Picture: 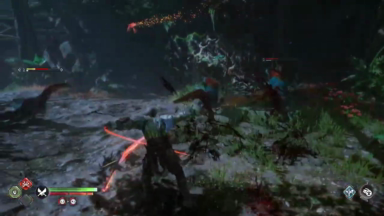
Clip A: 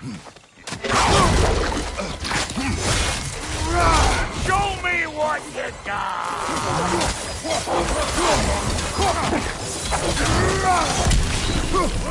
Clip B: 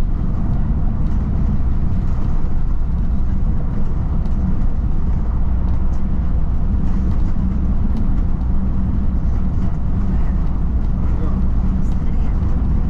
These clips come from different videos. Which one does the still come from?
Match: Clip A